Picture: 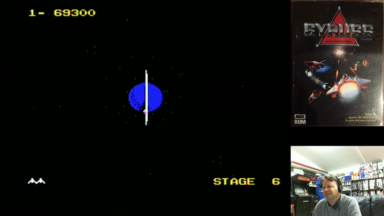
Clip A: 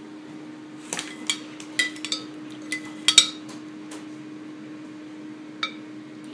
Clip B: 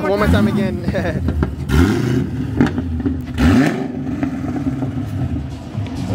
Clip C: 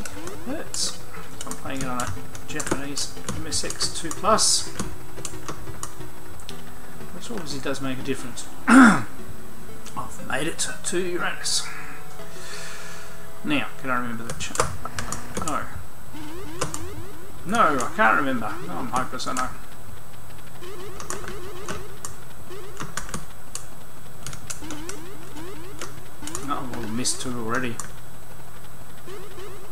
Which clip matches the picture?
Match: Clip C